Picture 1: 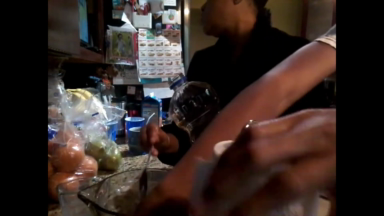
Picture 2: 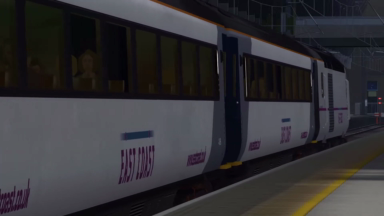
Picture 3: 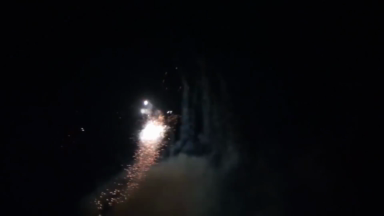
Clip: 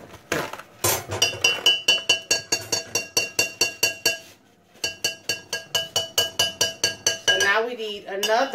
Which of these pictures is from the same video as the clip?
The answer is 1